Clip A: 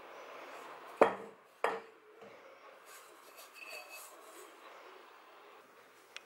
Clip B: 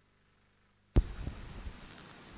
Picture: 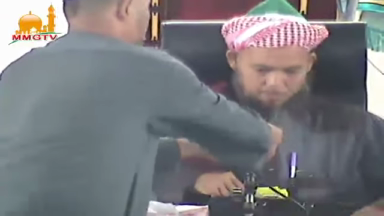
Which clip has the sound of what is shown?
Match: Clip B